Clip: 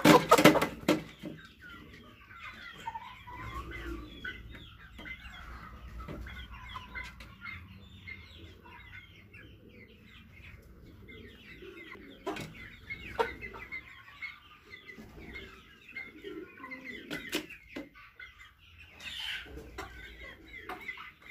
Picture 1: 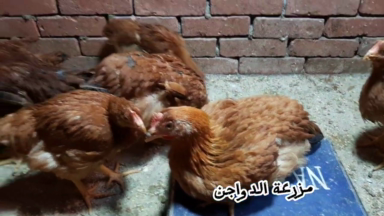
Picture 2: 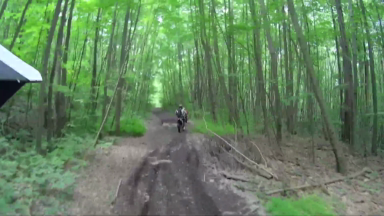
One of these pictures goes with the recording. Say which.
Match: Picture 1